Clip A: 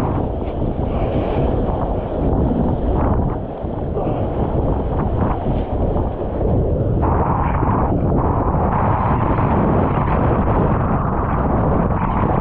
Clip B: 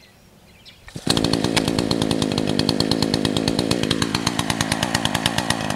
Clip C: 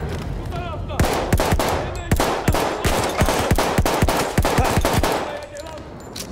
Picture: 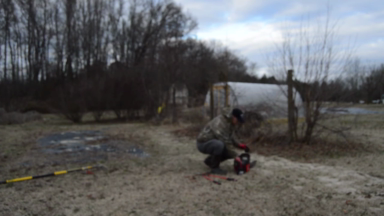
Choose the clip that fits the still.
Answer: B